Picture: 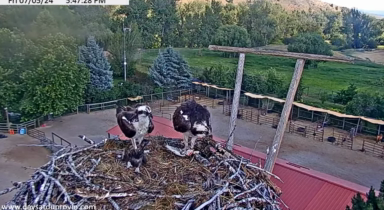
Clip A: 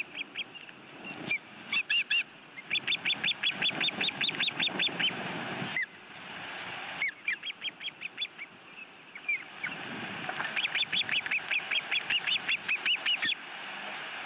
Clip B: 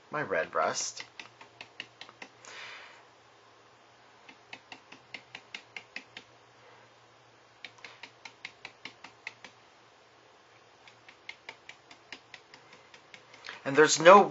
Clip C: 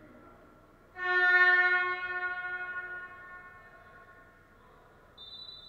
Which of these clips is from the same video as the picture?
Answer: A